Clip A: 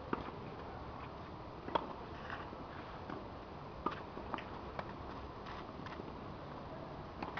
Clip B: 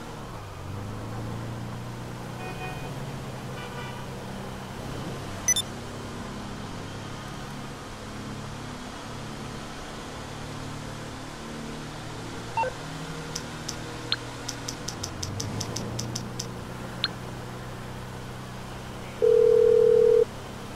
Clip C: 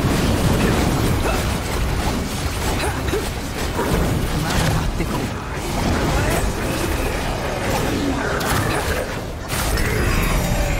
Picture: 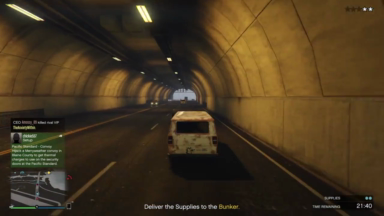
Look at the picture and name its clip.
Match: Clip B